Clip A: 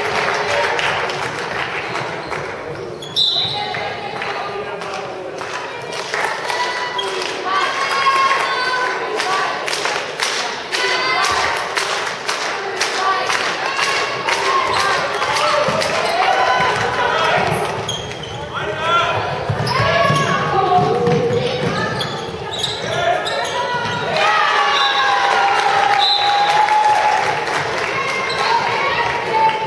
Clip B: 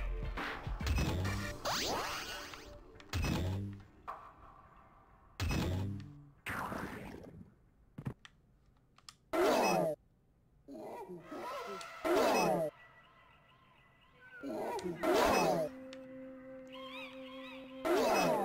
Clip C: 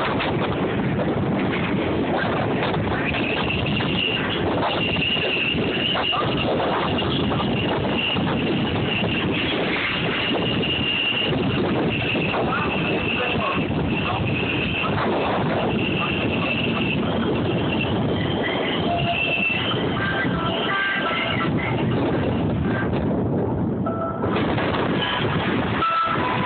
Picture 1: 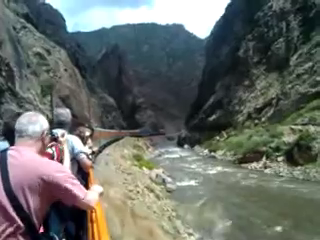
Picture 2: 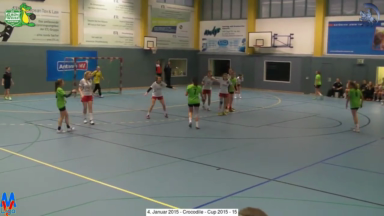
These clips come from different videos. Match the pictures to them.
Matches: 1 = C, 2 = A